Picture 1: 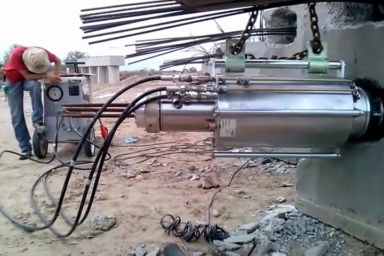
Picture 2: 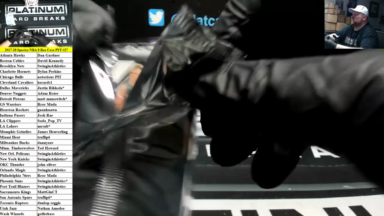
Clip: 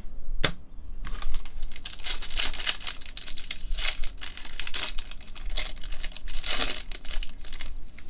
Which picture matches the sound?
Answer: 2